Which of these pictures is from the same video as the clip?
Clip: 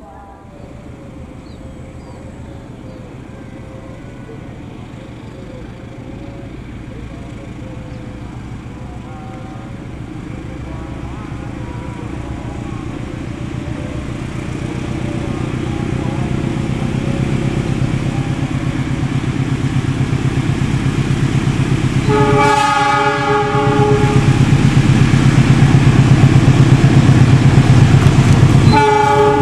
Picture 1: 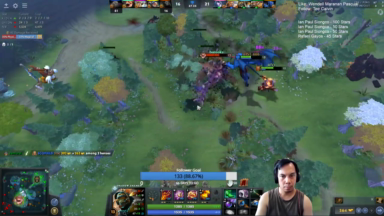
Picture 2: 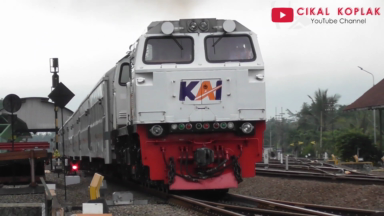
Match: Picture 2